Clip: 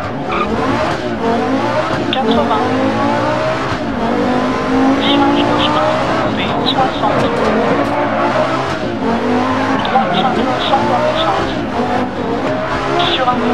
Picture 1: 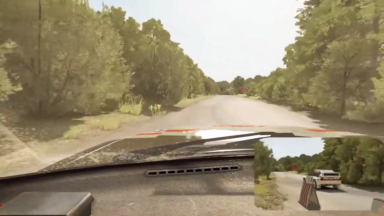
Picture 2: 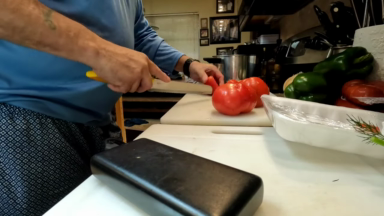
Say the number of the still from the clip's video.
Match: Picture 1